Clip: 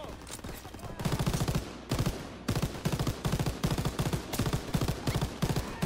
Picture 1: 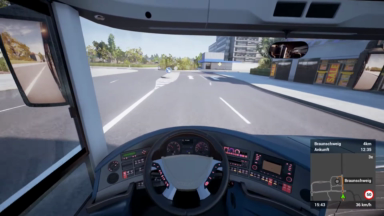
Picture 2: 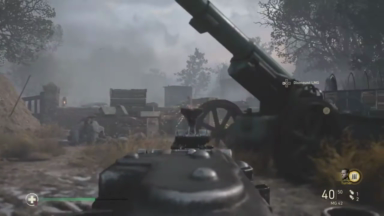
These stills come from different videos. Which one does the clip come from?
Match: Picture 2